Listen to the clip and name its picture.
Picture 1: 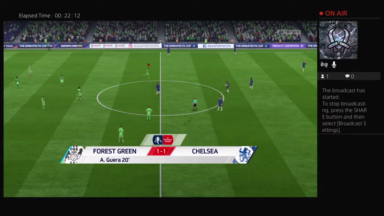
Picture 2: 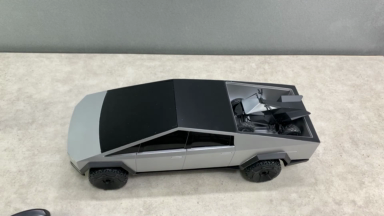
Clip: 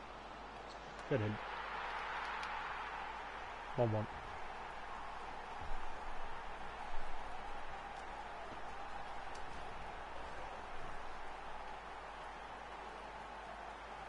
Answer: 1